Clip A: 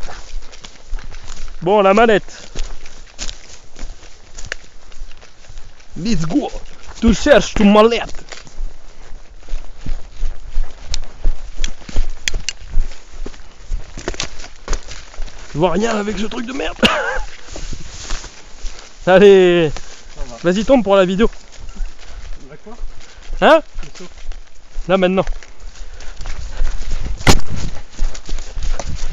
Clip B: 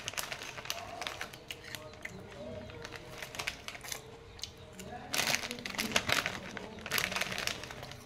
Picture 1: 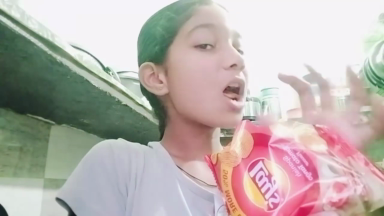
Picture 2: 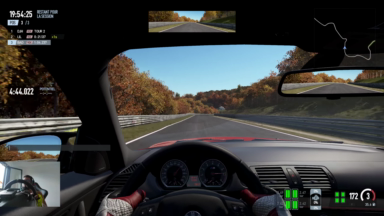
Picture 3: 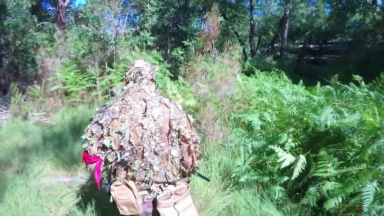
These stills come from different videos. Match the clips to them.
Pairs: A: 3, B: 1